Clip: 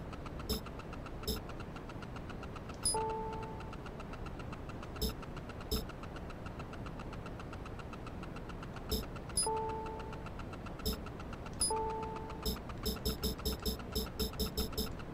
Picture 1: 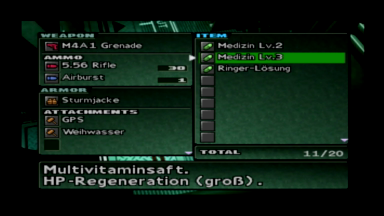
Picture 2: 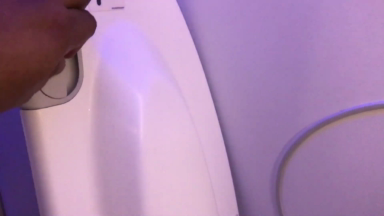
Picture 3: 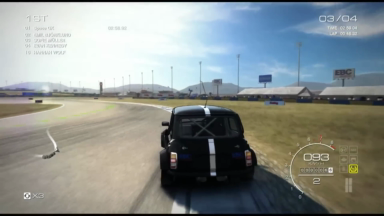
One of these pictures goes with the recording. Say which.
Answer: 1